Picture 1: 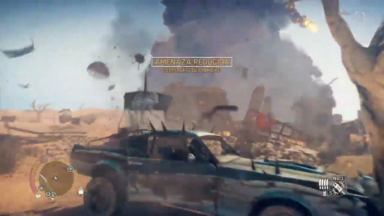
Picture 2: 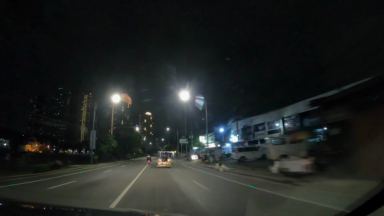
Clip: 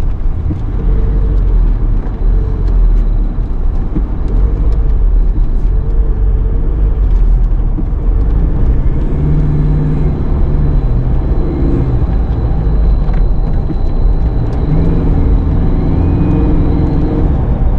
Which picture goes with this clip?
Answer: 2